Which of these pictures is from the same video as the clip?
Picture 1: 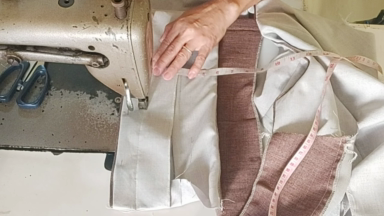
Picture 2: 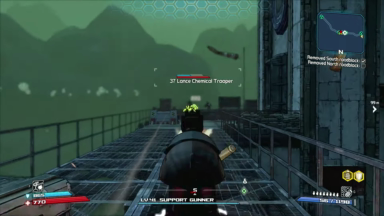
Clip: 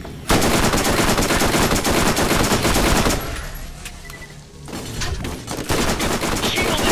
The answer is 2